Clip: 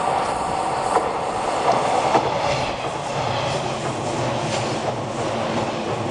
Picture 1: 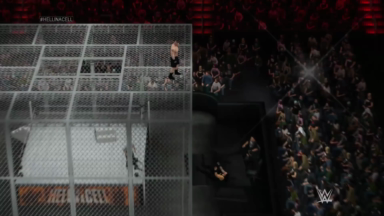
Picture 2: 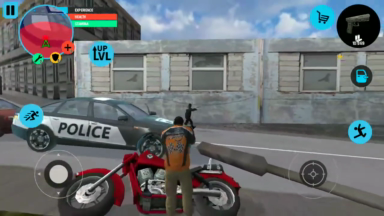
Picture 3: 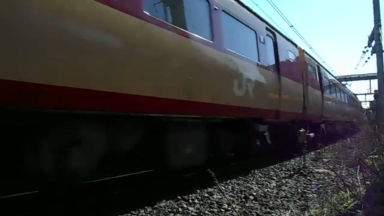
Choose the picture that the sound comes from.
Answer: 3